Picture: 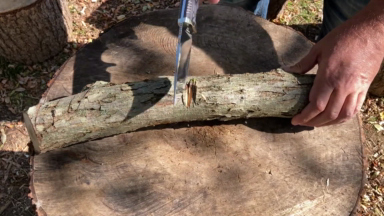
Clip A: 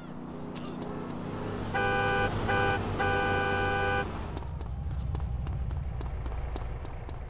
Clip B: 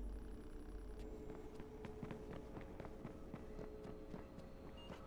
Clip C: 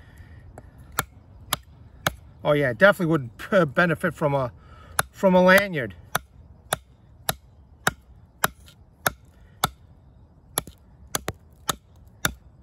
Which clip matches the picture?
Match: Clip C